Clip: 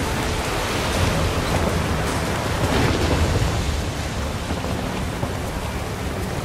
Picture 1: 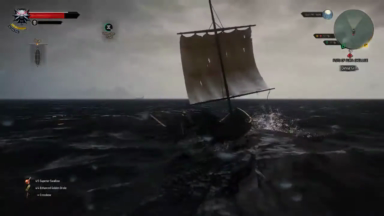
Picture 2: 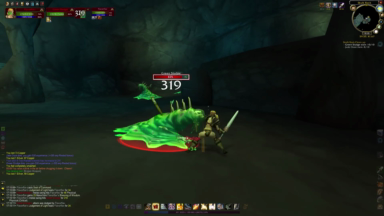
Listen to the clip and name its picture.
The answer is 1